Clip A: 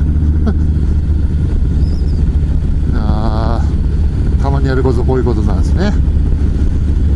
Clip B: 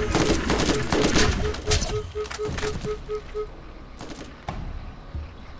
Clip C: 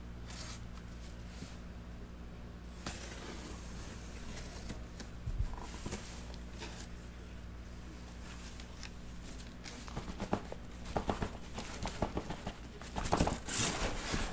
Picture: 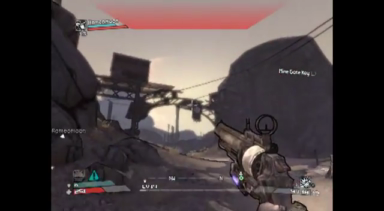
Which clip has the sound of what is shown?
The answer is B